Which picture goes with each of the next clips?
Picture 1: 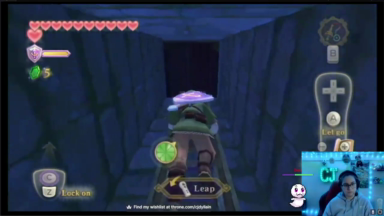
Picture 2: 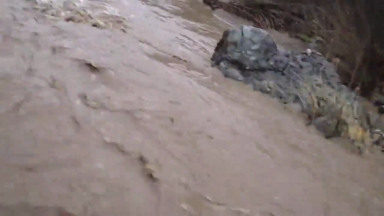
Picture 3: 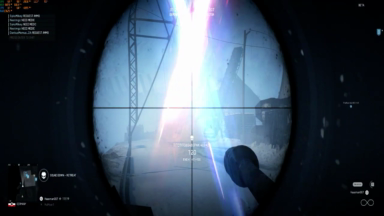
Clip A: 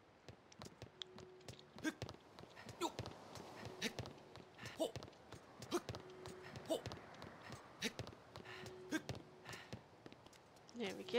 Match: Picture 1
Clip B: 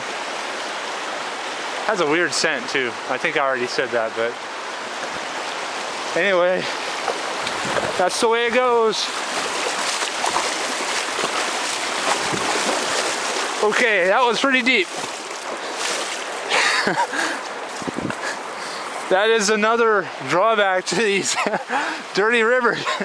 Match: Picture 2